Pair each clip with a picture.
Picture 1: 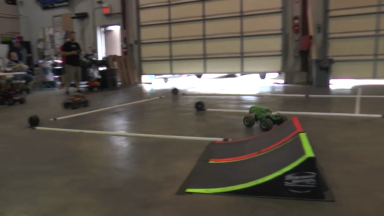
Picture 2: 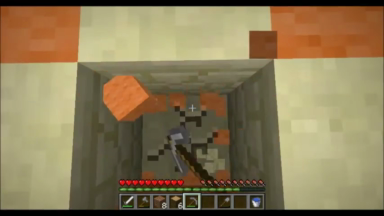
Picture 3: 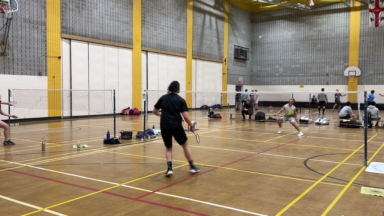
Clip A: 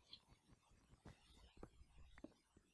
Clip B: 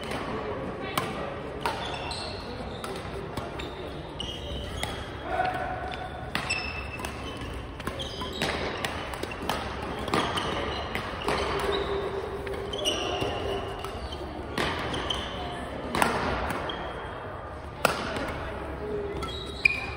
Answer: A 2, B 3